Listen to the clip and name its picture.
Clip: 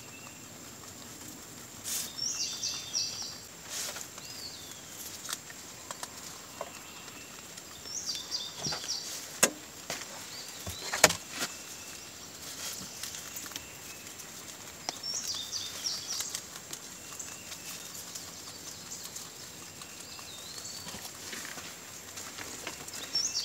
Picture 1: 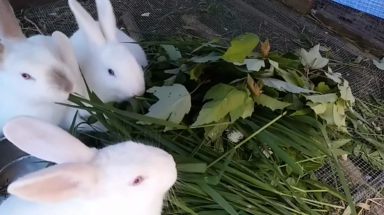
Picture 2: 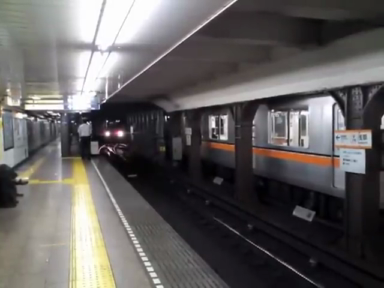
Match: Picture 1